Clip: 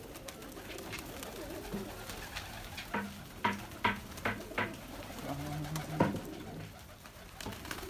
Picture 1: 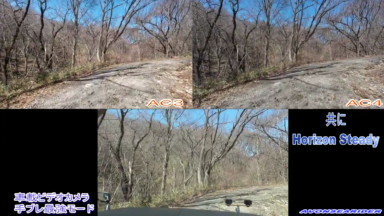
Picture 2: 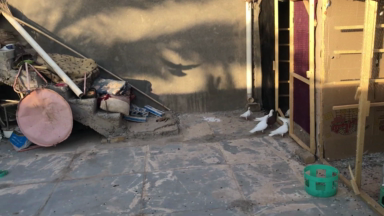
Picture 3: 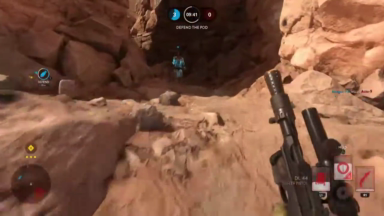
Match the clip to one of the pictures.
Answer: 2